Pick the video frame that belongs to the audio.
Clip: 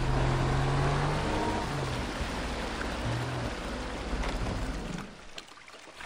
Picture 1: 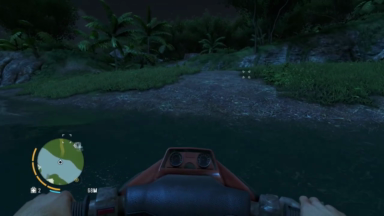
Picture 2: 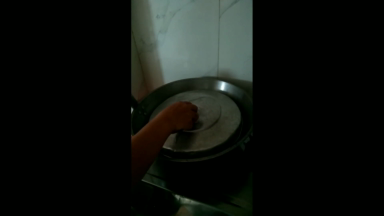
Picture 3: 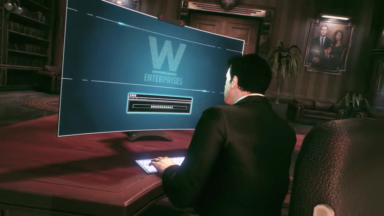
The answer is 1